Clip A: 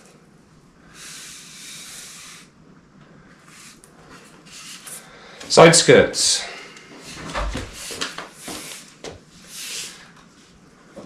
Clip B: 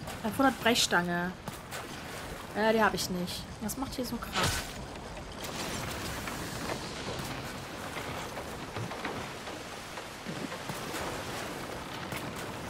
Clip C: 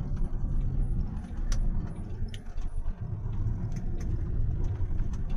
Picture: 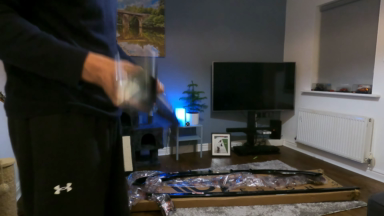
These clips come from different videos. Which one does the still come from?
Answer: A